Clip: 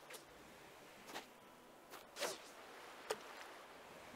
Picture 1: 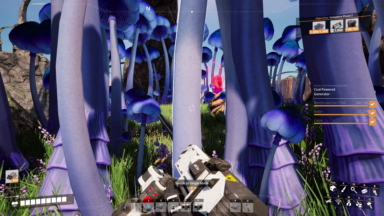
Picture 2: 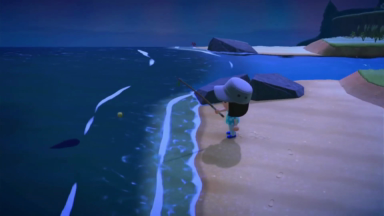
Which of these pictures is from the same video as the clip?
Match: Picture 2